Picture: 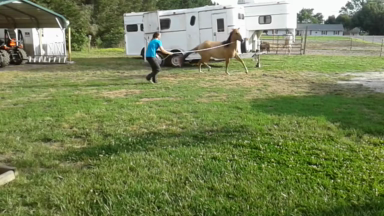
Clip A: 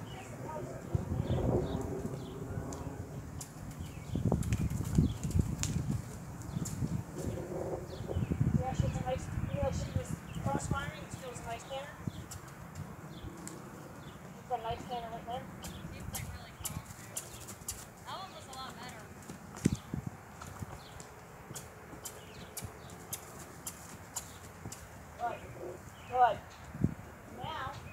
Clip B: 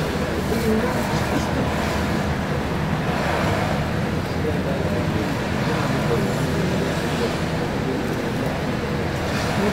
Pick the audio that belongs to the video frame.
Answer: A